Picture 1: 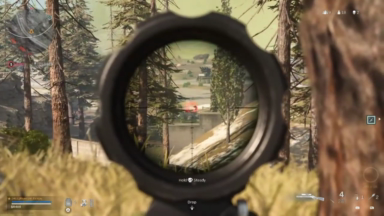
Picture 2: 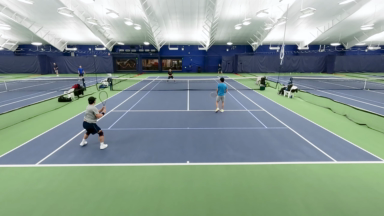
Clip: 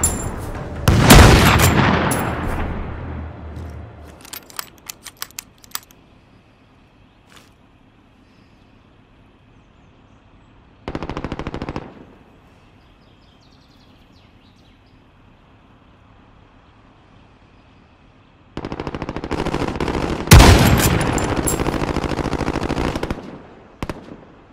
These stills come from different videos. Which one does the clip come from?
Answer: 1